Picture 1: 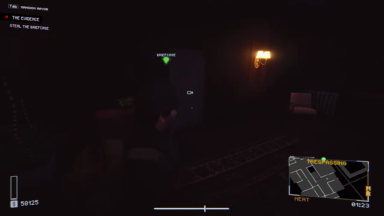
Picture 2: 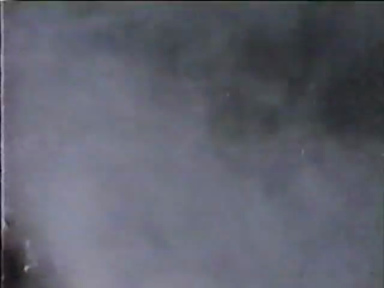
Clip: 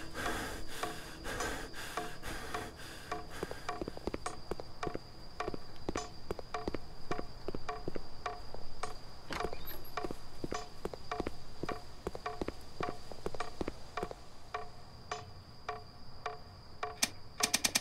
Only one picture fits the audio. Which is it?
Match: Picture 1